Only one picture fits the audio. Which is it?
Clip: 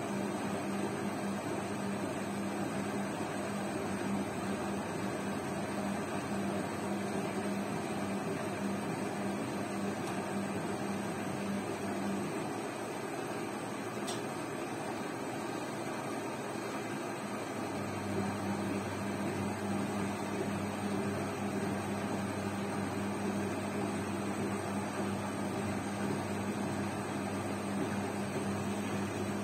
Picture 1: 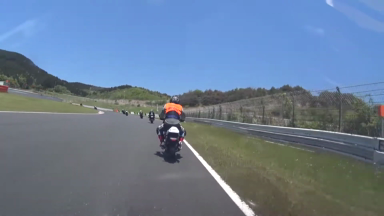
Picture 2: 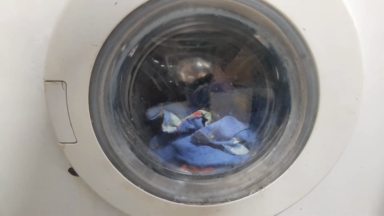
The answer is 2